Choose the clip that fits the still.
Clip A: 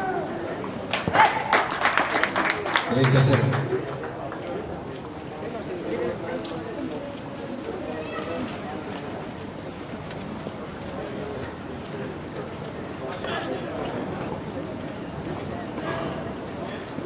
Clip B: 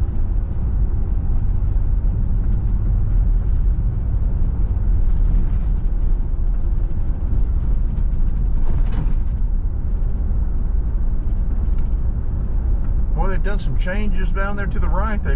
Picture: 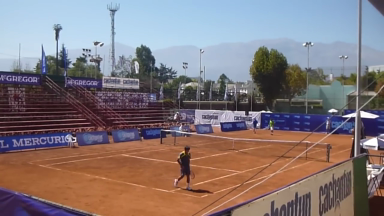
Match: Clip A